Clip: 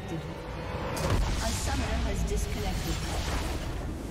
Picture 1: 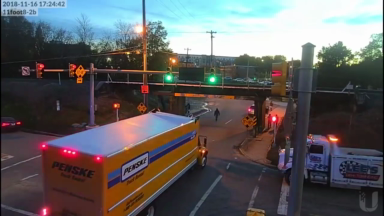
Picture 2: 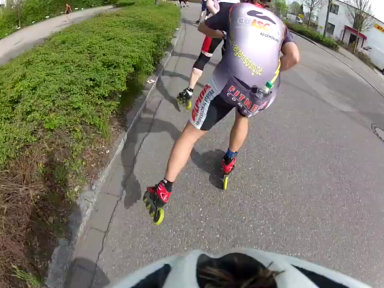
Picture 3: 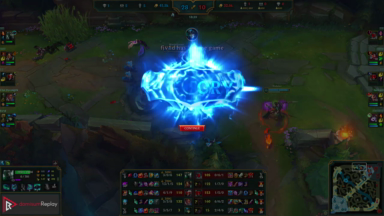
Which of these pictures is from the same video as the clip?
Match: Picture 3